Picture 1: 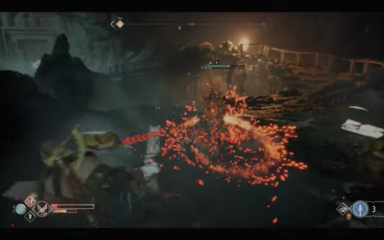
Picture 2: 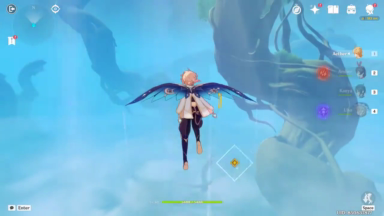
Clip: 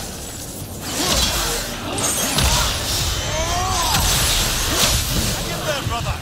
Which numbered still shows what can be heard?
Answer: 1